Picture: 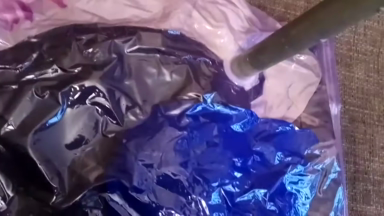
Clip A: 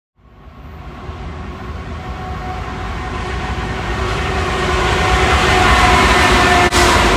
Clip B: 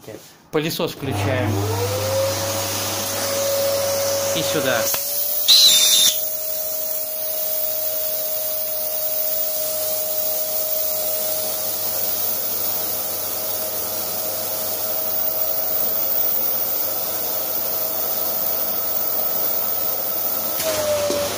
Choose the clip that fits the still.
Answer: B